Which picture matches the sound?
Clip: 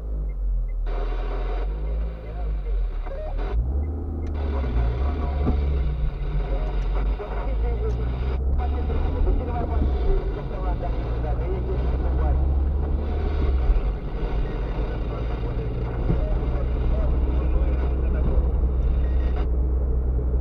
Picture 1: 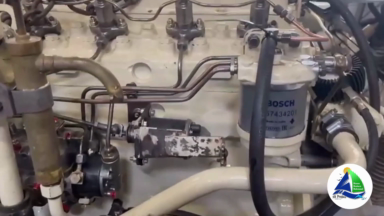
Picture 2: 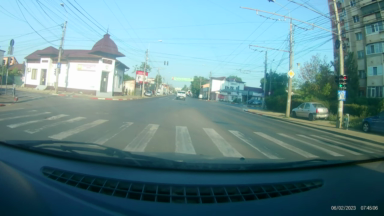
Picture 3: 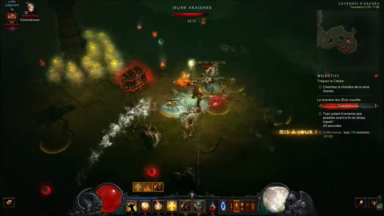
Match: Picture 2